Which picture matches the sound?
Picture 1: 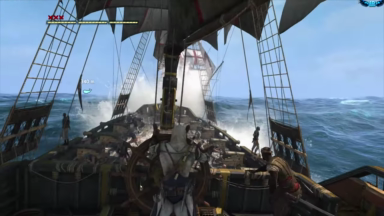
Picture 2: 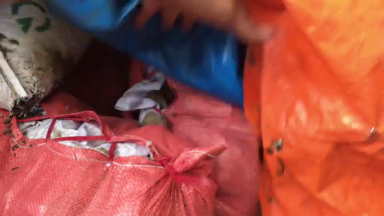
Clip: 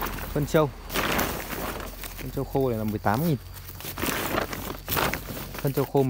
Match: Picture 2